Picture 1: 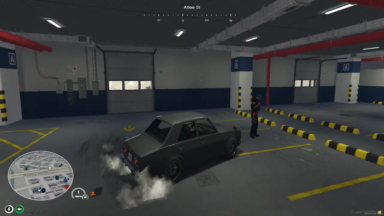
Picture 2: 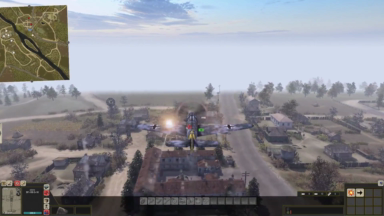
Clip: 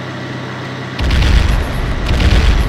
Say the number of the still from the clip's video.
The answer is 2